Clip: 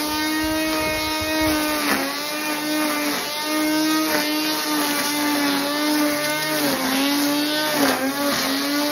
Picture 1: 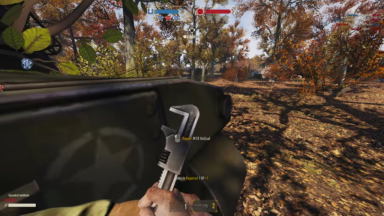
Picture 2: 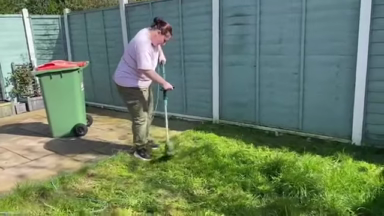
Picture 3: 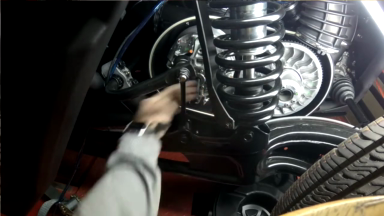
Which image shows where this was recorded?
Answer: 2